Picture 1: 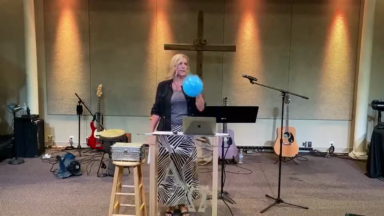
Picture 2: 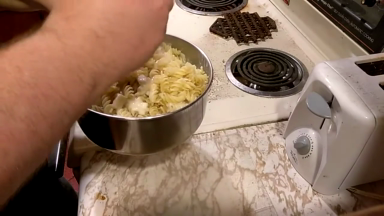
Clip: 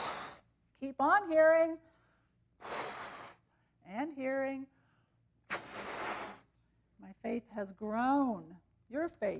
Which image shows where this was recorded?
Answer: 1